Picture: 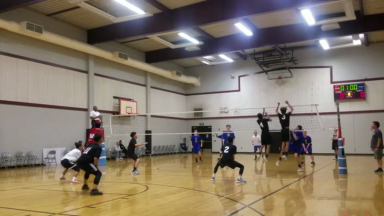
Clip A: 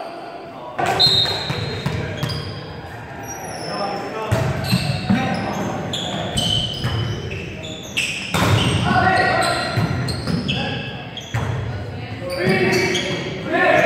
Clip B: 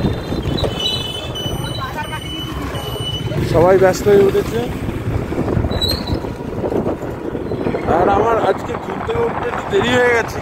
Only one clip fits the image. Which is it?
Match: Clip A